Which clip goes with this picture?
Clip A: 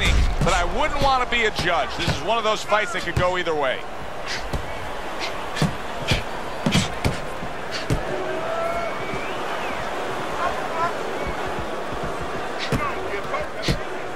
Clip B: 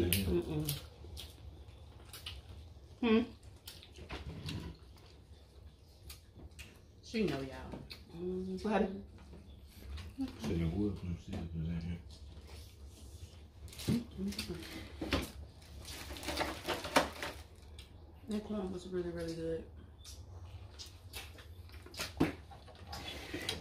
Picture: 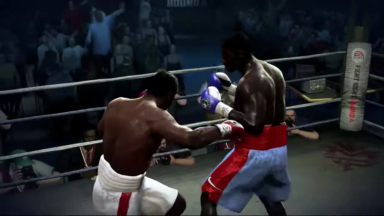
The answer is A